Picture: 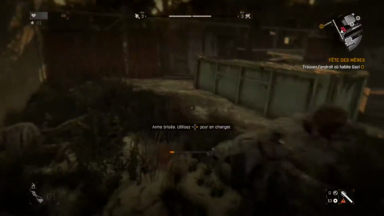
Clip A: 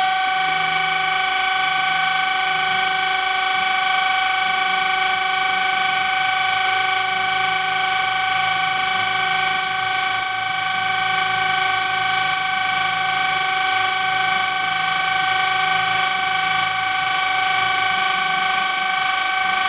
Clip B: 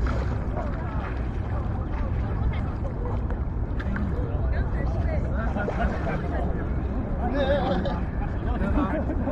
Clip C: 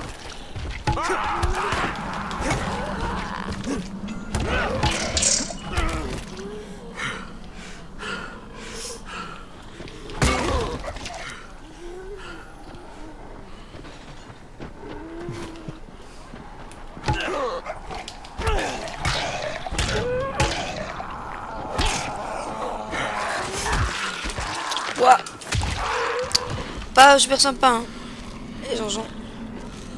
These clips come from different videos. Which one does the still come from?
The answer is C